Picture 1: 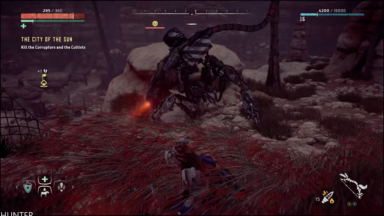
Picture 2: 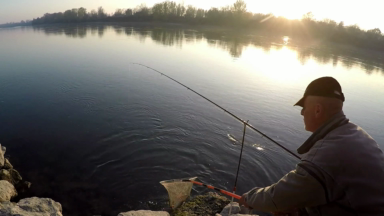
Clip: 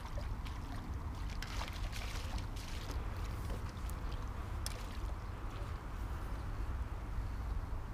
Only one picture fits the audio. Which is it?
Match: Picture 2